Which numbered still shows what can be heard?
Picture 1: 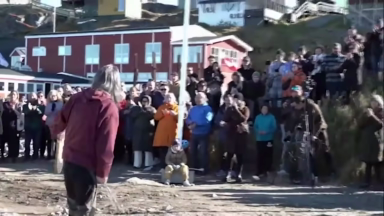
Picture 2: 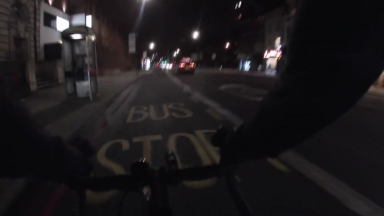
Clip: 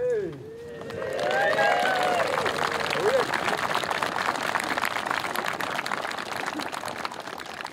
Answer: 1